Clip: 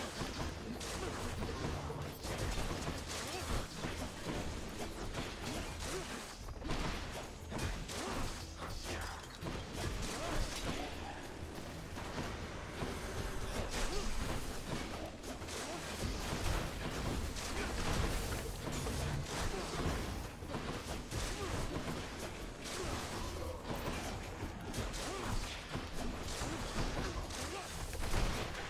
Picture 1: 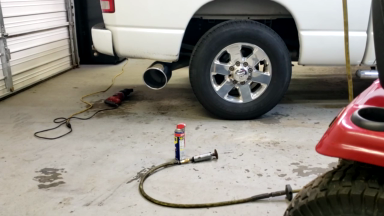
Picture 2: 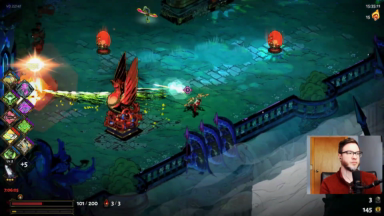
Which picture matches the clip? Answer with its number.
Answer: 2